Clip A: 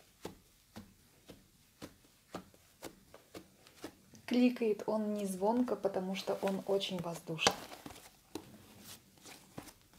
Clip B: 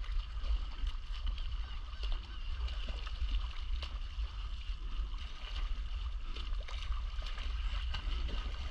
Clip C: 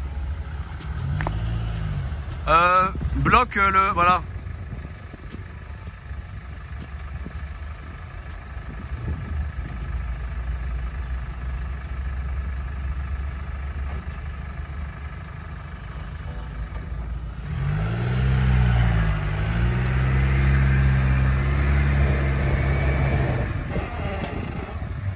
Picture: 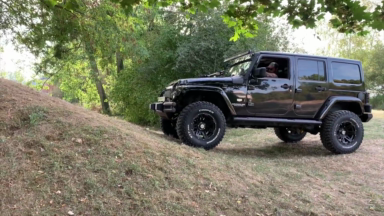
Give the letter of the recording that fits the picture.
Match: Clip C